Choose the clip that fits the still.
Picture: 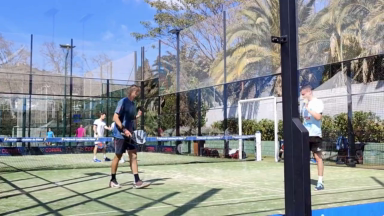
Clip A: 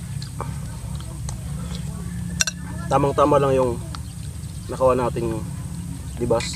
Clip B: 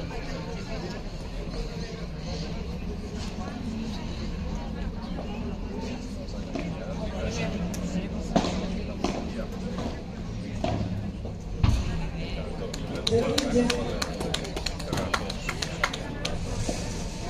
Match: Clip B